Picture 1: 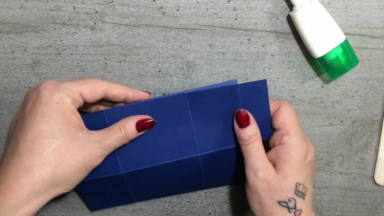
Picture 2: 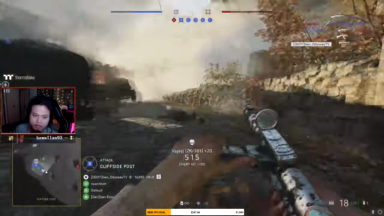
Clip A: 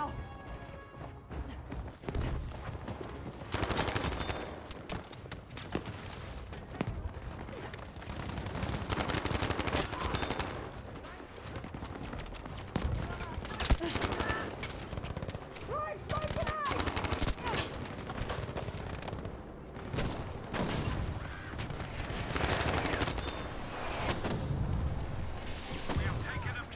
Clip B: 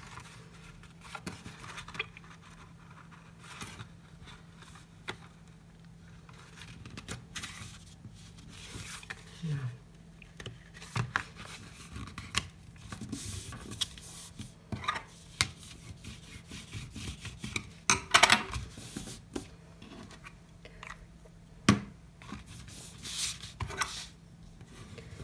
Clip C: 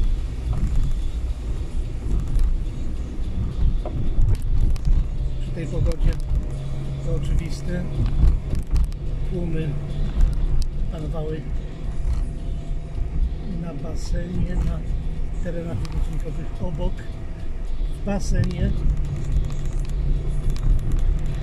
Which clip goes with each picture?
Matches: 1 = B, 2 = A